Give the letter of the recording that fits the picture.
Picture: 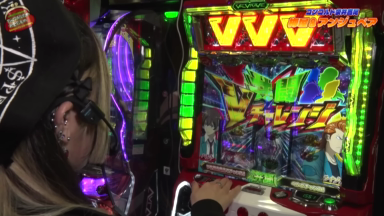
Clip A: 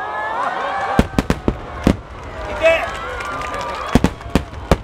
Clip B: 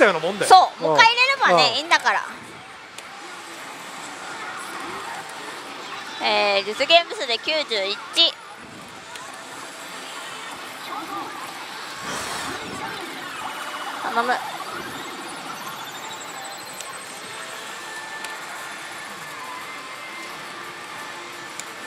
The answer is B